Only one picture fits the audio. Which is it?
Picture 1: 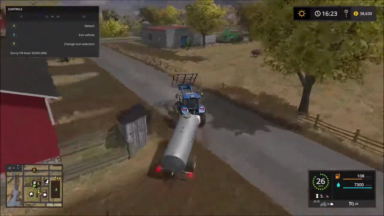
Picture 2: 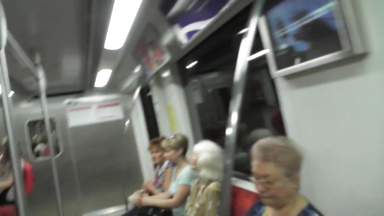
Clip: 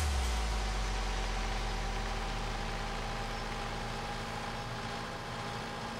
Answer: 1